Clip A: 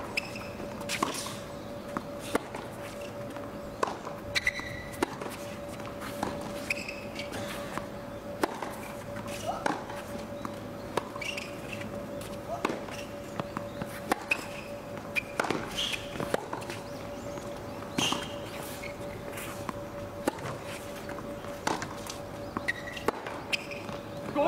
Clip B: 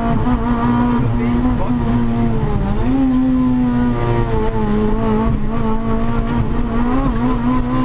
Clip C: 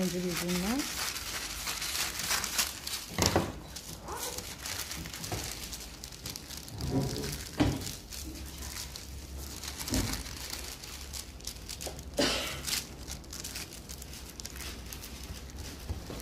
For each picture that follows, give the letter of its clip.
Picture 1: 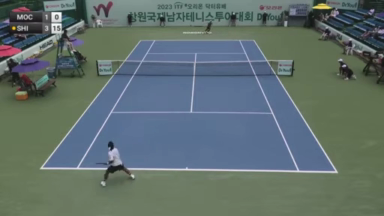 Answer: A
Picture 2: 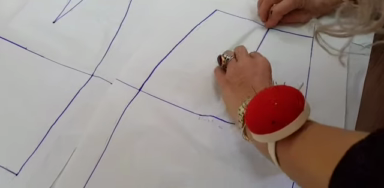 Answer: C